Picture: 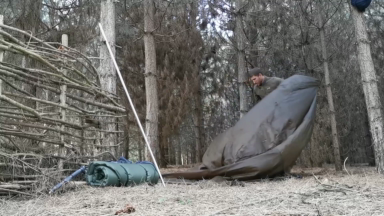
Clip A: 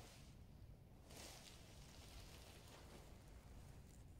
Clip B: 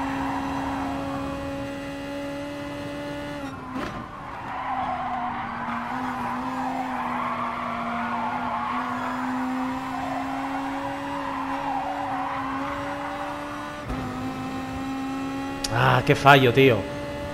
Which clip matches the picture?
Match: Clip A